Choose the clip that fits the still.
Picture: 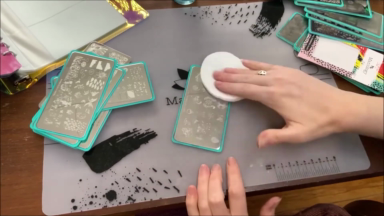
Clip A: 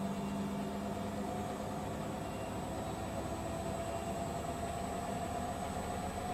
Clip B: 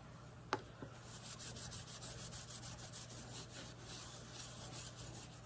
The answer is B